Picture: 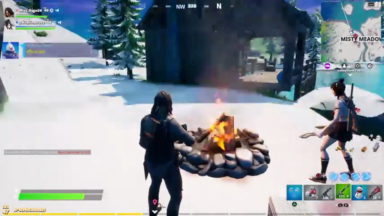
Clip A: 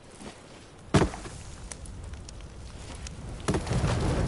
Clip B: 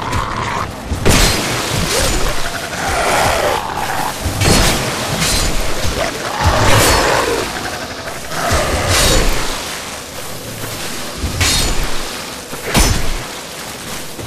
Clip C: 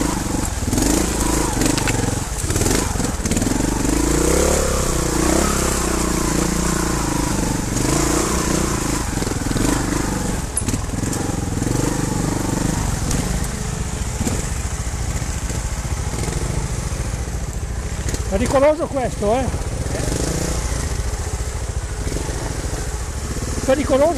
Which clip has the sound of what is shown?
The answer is A